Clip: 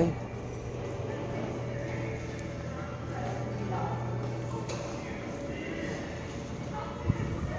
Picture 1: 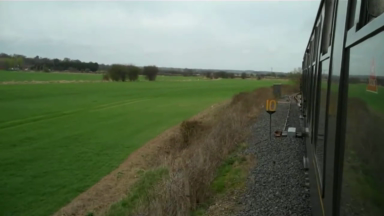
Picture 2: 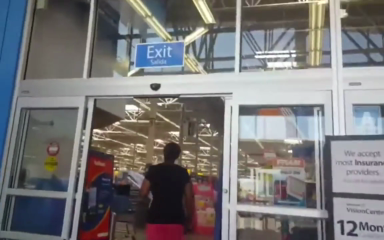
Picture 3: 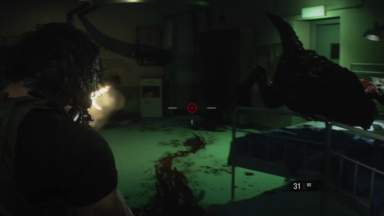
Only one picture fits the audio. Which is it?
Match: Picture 2